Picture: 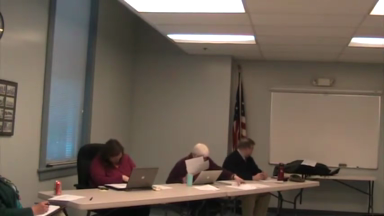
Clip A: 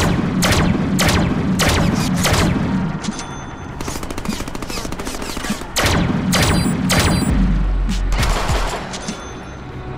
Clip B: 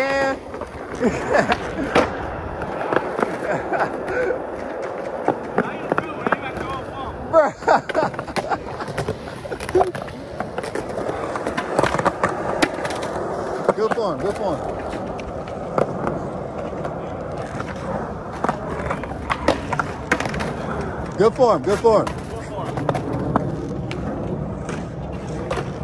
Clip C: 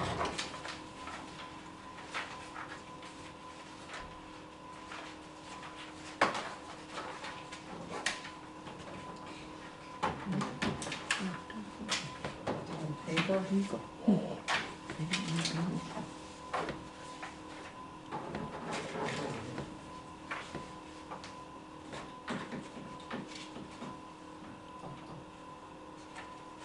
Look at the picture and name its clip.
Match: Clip C